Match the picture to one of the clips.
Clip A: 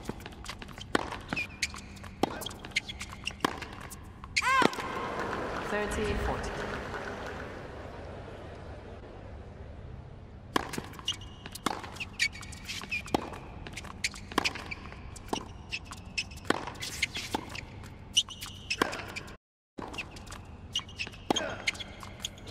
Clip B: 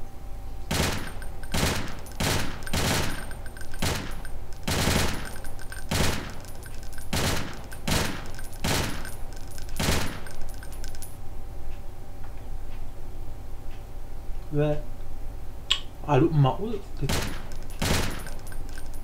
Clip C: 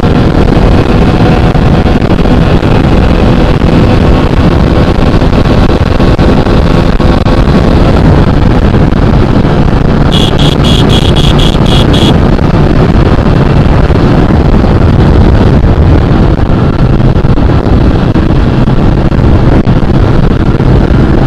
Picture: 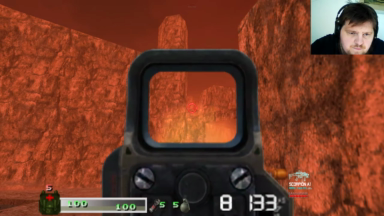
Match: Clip B